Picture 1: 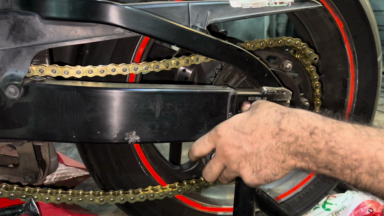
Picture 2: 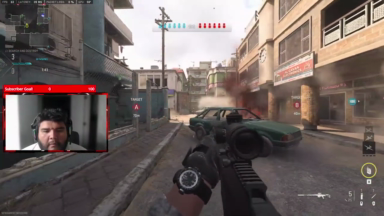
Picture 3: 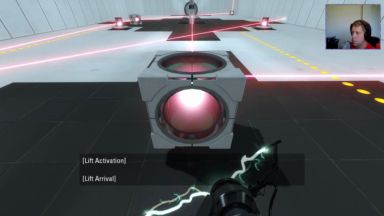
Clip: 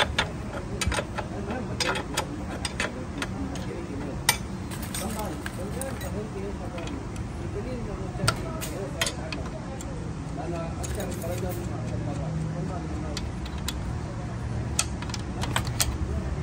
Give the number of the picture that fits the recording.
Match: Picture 1